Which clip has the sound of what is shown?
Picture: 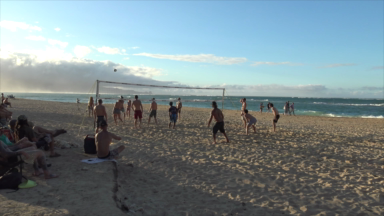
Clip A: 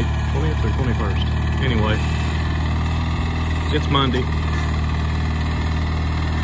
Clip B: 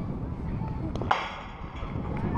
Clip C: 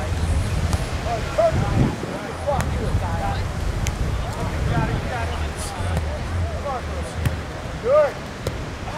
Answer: C